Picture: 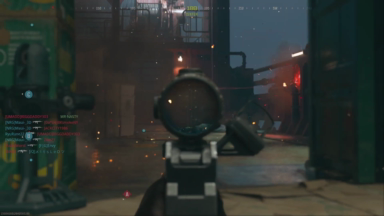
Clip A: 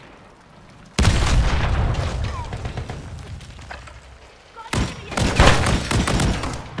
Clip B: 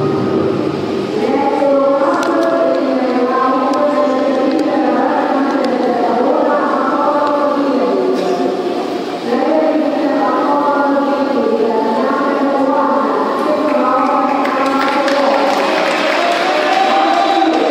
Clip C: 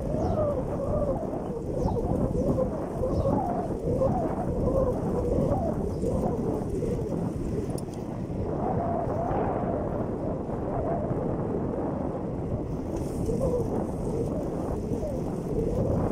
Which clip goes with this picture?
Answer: A